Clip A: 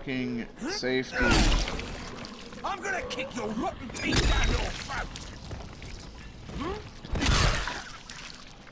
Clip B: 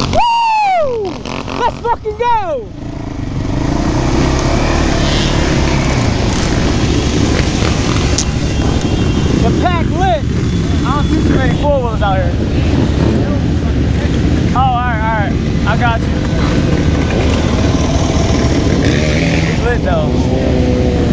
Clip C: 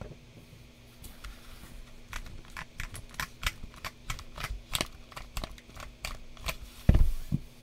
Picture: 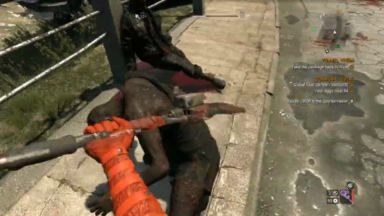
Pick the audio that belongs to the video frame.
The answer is A